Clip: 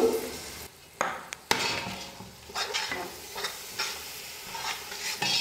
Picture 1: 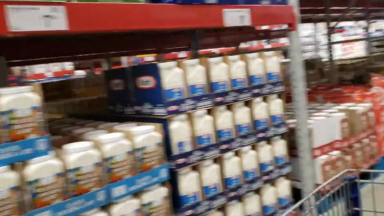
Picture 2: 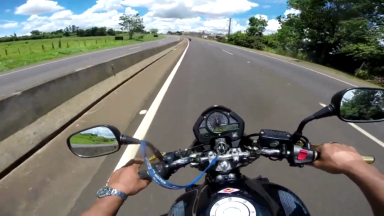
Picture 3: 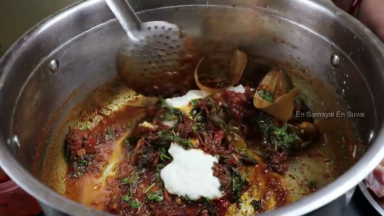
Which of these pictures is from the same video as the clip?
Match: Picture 3